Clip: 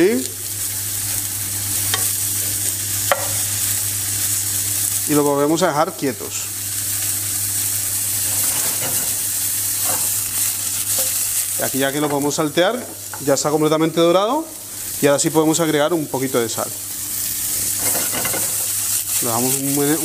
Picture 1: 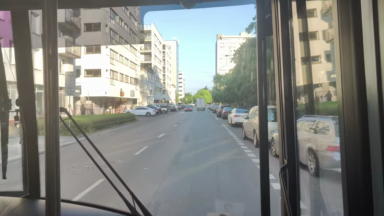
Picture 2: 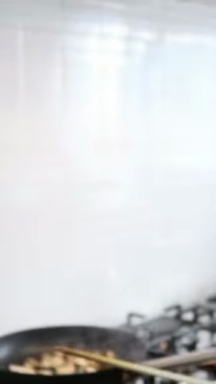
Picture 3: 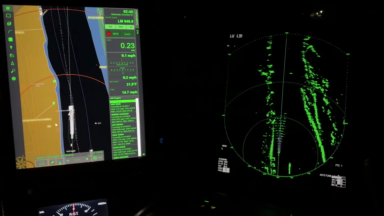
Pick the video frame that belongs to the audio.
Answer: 2